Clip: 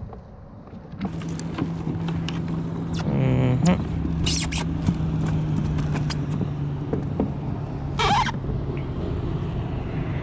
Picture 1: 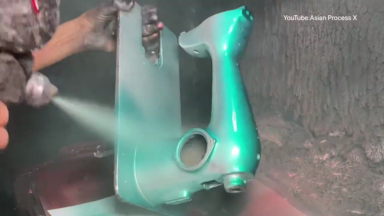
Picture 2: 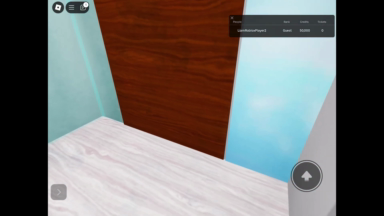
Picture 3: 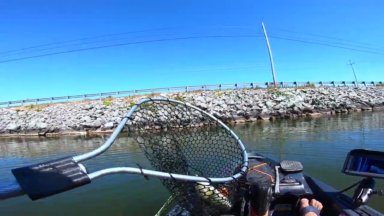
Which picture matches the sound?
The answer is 3